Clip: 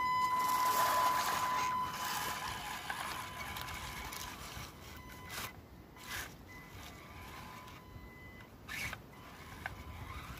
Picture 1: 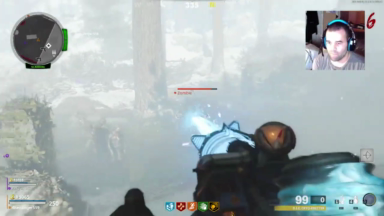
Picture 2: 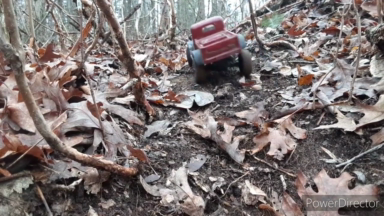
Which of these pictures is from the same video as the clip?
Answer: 2